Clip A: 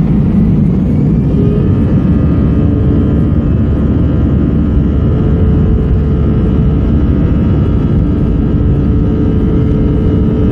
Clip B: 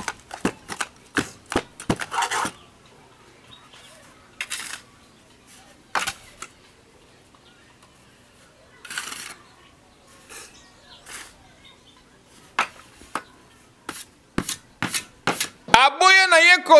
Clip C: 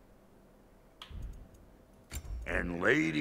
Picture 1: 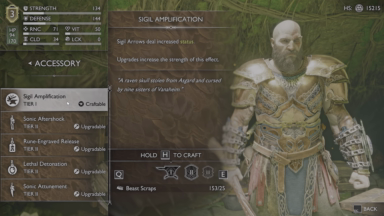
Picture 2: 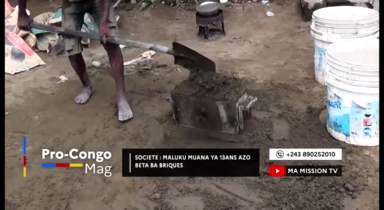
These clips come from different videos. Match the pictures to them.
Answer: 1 C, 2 B